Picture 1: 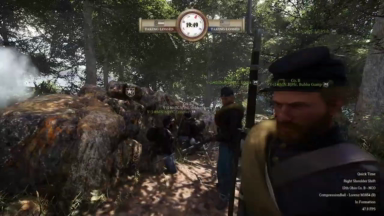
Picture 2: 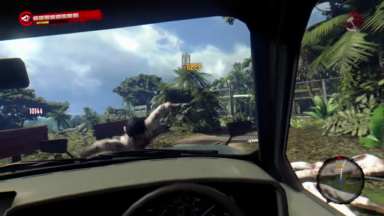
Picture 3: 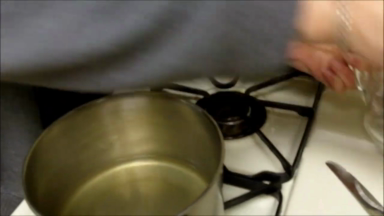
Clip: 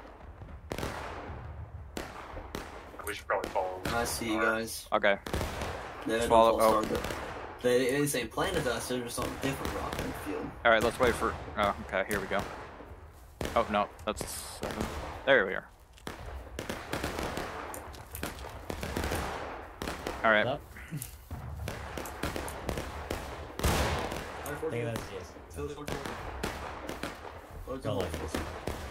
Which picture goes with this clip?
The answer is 1